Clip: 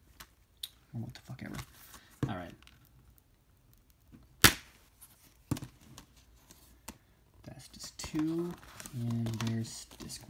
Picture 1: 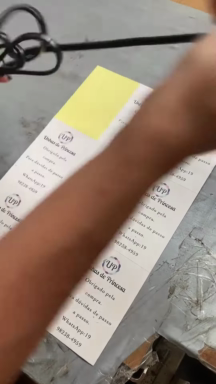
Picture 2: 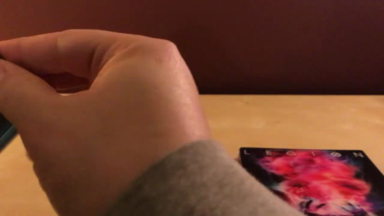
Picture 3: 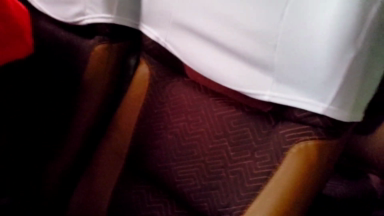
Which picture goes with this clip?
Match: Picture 2